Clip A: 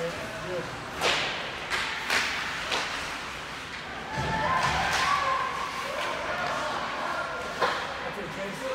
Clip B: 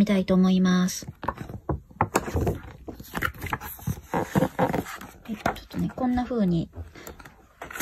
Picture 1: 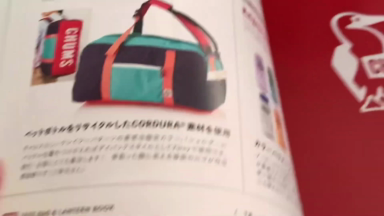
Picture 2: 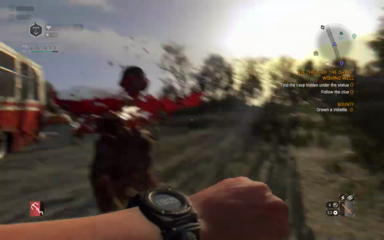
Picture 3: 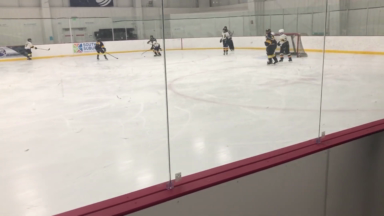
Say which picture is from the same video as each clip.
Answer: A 3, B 1